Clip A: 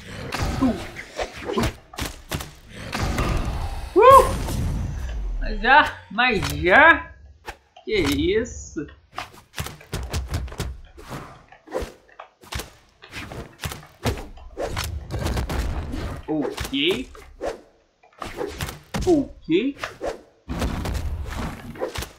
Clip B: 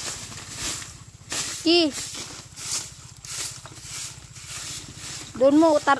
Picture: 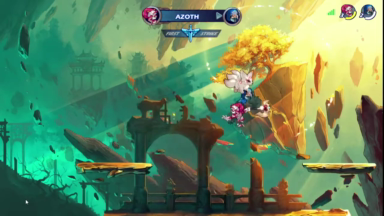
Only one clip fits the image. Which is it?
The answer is A